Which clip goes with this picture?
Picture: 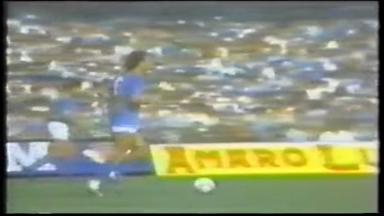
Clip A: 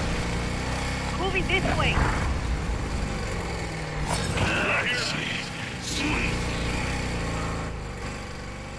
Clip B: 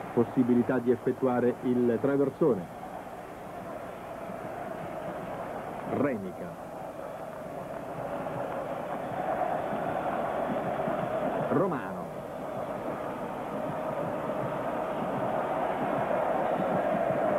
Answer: B